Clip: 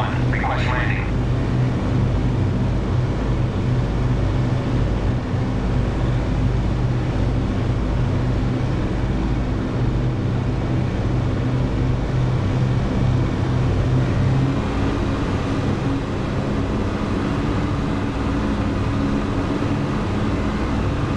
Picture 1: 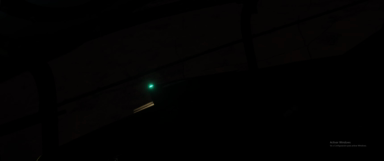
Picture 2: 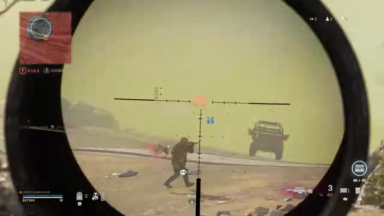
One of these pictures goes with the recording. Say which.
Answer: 1